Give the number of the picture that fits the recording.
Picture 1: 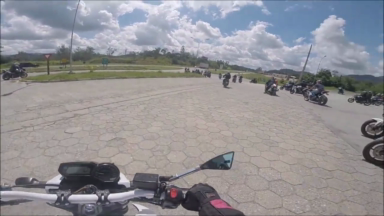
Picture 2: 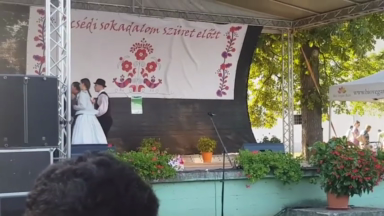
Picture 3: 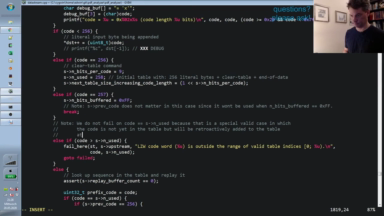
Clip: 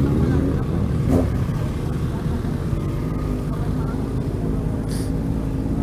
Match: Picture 1